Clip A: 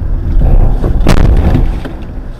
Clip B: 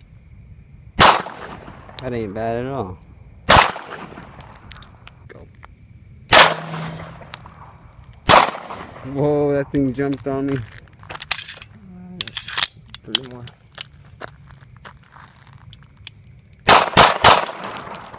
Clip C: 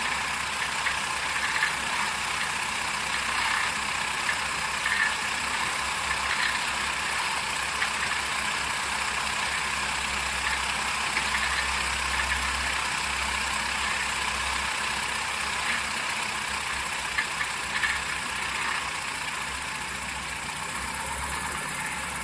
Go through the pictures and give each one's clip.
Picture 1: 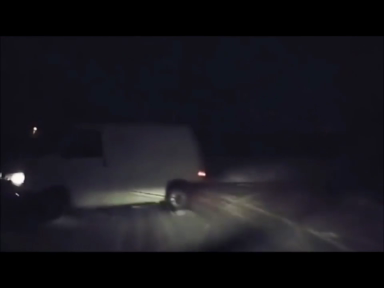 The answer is A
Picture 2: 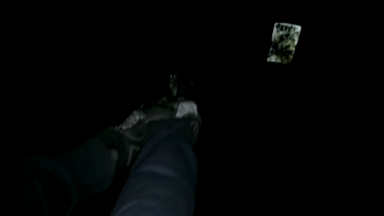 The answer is B